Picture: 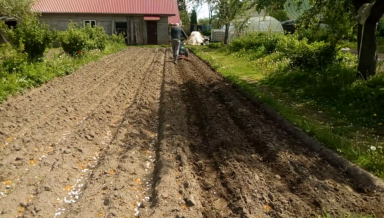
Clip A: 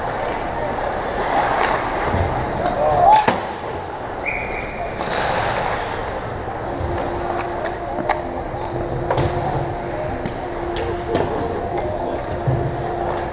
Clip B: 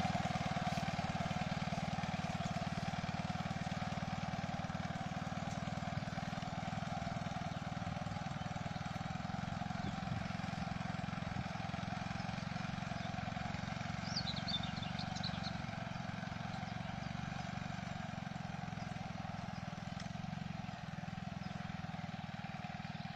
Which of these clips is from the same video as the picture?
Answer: B